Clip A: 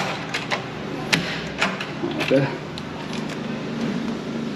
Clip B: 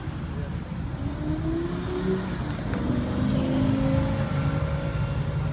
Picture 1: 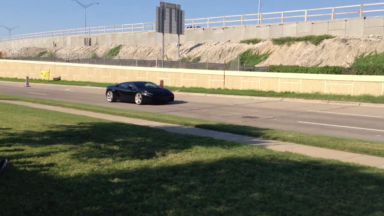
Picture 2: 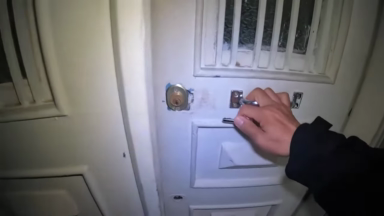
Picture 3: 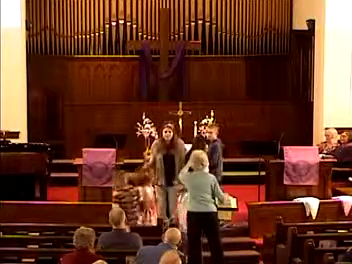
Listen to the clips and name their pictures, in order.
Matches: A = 2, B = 1